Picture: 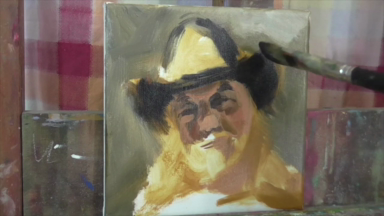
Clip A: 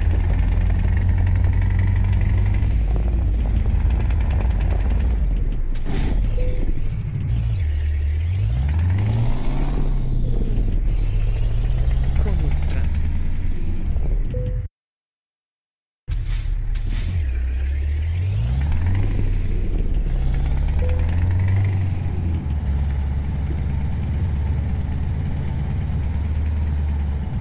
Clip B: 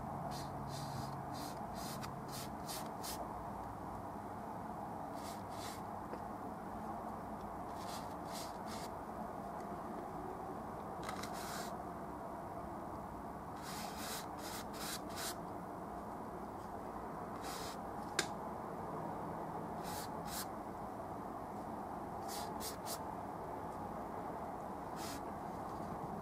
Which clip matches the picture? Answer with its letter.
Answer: B